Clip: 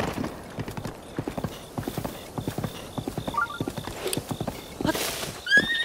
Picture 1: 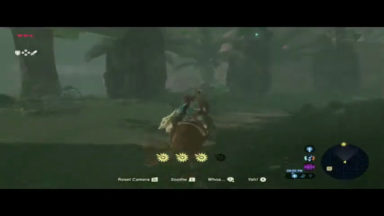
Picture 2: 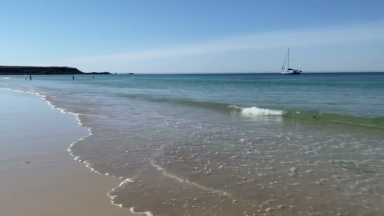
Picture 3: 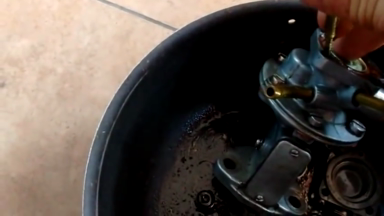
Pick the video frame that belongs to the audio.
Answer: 1